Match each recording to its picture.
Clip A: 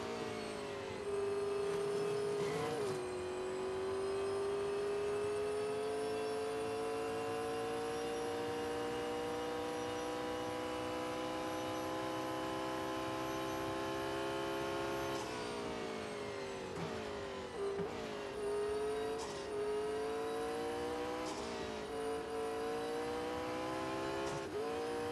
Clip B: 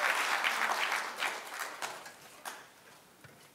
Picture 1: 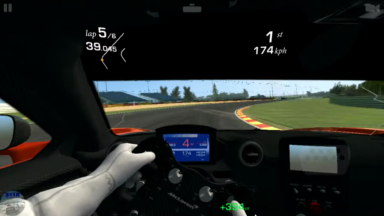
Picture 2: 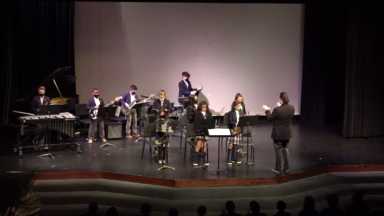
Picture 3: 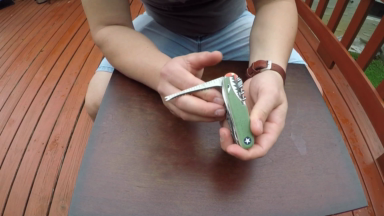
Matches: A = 1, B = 2